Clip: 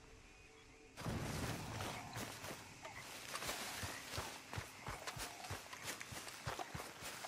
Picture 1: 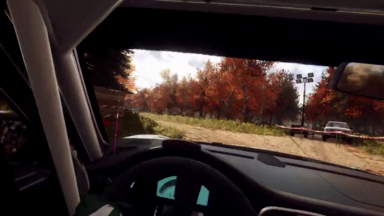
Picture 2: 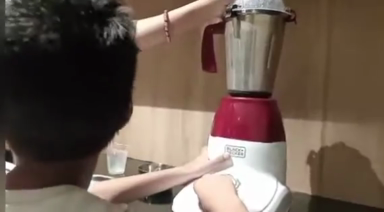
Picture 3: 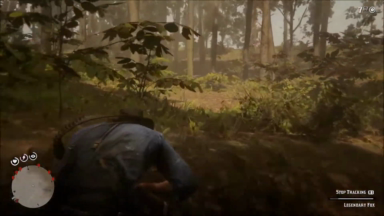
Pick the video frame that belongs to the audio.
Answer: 3